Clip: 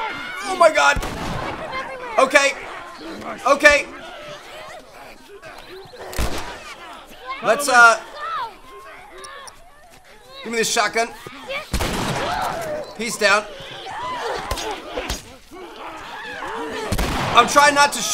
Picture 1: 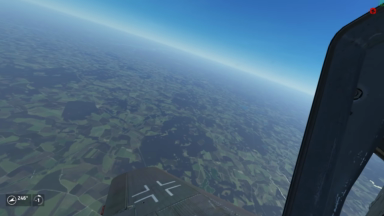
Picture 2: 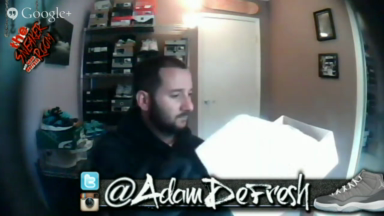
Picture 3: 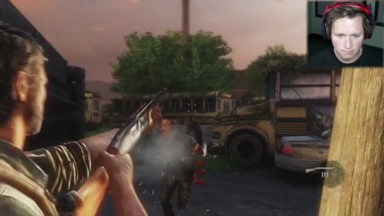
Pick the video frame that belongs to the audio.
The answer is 3